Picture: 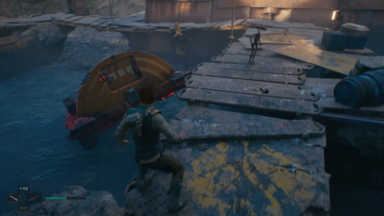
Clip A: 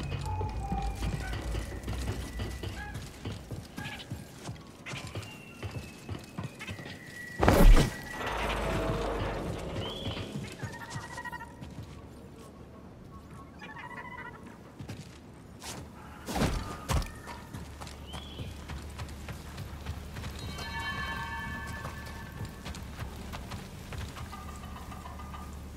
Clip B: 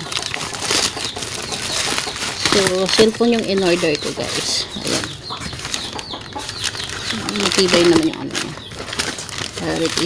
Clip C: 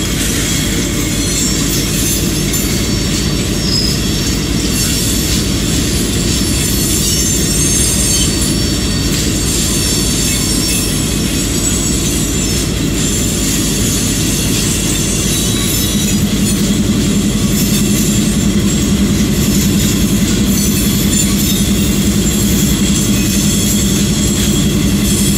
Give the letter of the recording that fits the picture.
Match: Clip A